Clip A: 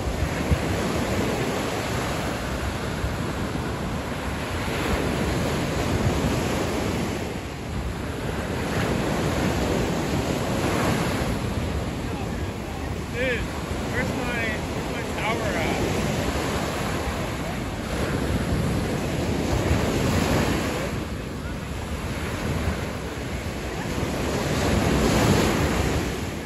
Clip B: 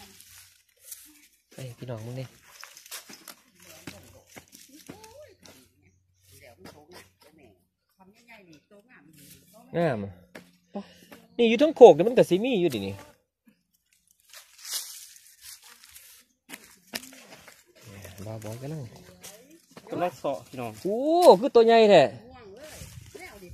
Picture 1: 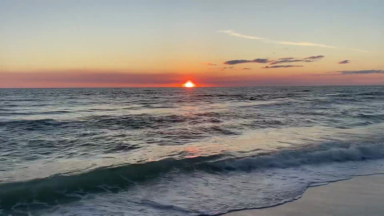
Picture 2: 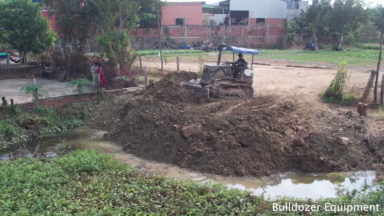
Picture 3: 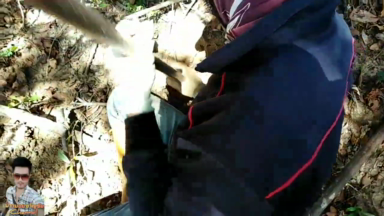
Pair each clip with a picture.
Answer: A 1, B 3